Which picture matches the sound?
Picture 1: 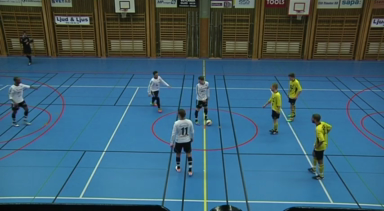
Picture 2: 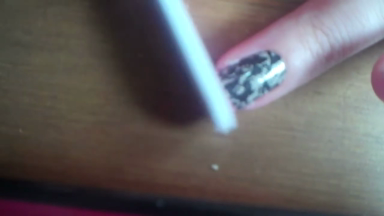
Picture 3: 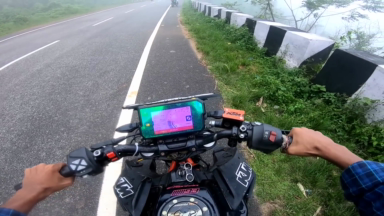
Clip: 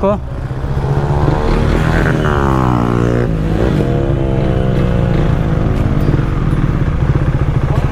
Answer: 3